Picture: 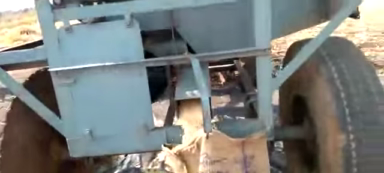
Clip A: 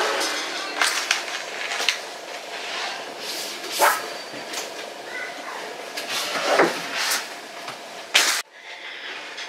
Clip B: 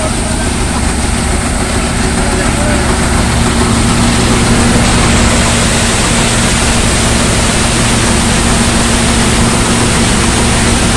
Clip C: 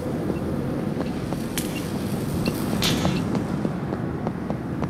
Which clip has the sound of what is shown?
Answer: B